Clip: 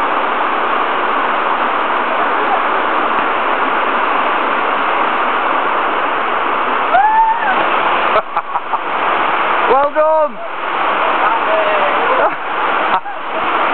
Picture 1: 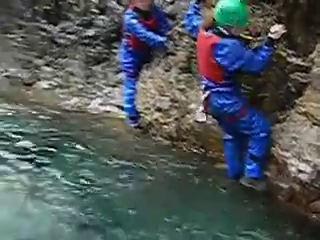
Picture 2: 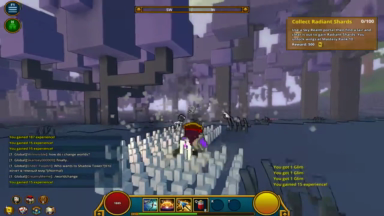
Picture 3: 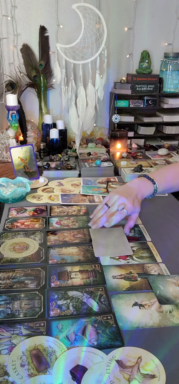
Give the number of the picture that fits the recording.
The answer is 1